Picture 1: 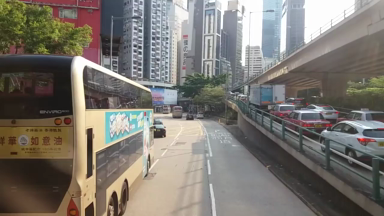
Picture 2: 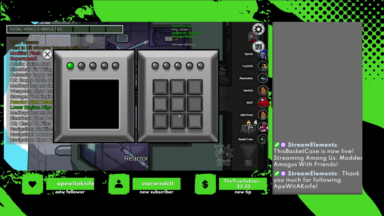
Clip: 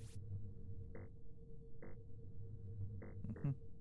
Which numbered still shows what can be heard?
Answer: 2